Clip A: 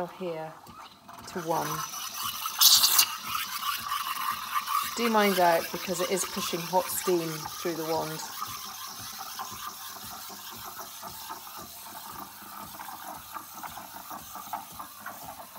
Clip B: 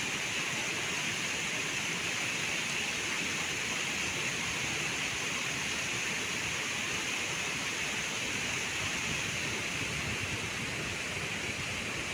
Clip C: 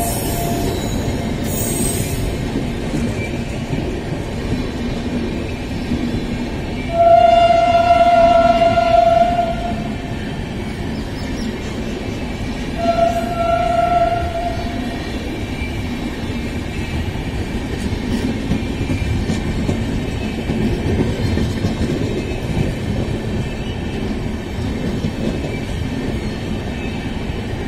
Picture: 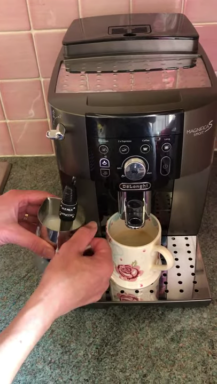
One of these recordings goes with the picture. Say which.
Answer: A